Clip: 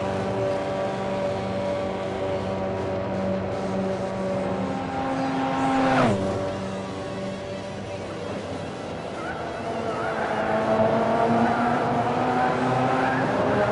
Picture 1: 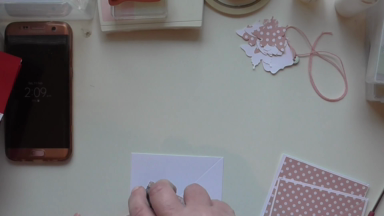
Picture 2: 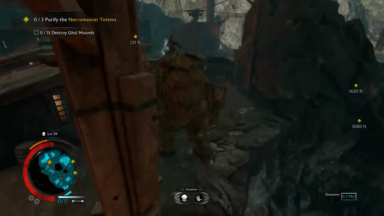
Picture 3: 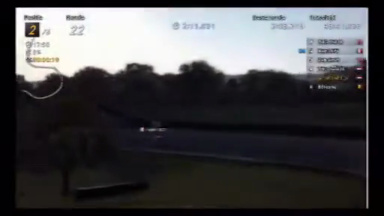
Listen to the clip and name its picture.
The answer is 3